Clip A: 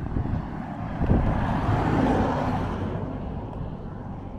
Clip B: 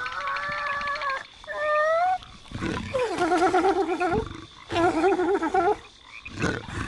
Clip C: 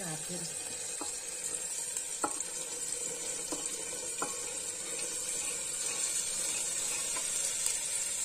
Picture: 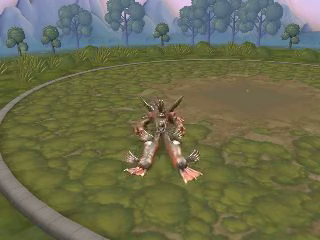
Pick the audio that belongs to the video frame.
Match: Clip B